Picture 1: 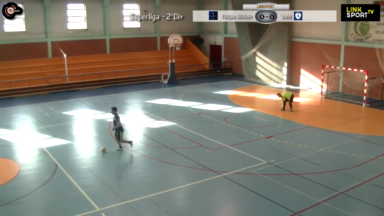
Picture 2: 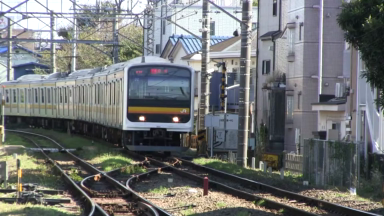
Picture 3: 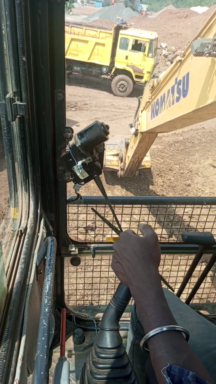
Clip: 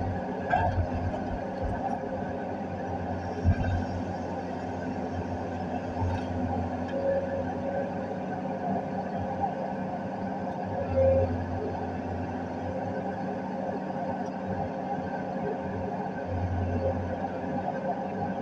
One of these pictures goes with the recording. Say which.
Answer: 3